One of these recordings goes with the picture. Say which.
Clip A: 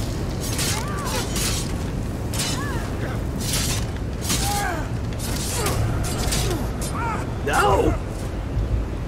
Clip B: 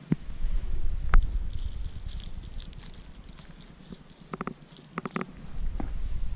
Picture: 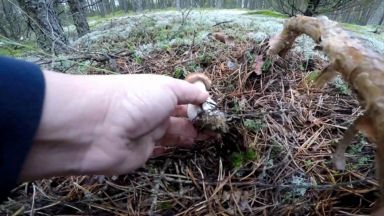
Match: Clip B